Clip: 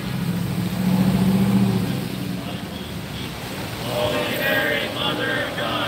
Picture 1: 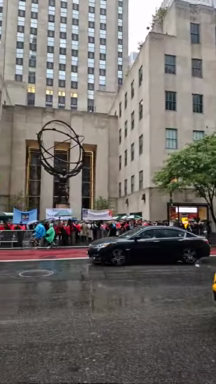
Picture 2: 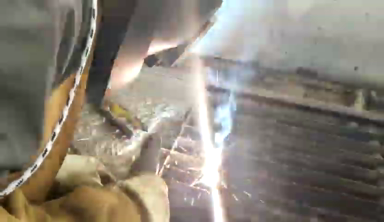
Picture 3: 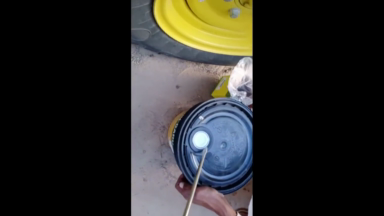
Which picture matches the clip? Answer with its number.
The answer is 1